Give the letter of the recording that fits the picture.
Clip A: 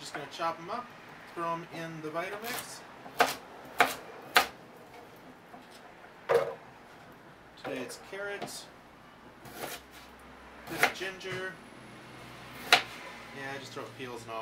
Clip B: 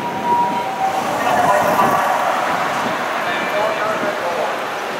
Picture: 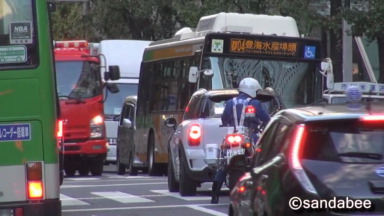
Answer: B